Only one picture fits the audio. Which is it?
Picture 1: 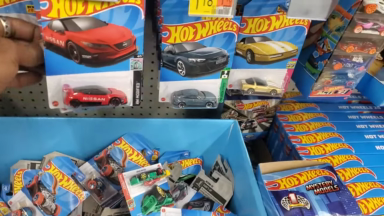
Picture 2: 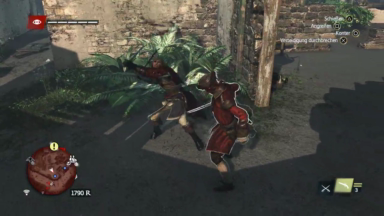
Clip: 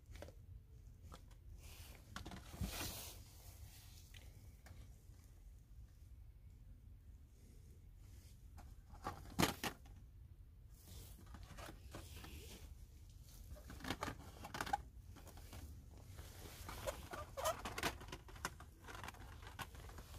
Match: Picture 1